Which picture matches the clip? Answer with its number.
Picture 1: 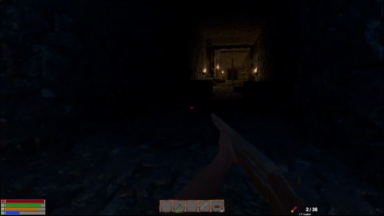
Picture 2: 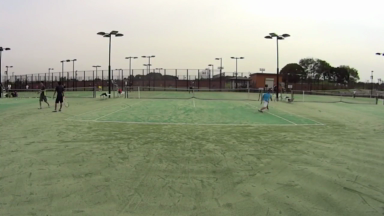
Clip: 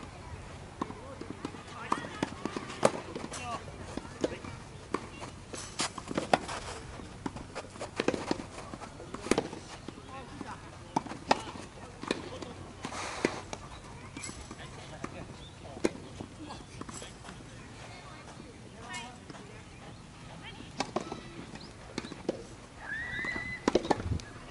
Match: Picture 2